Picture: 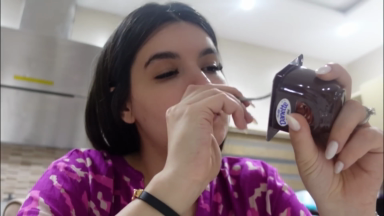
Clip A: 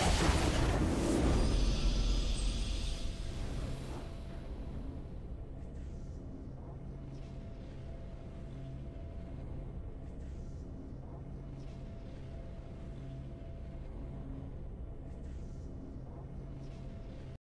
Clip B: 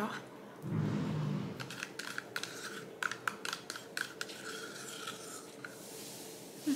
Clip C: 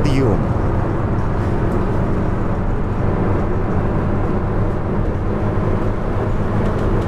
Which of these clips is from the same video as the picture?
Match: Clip B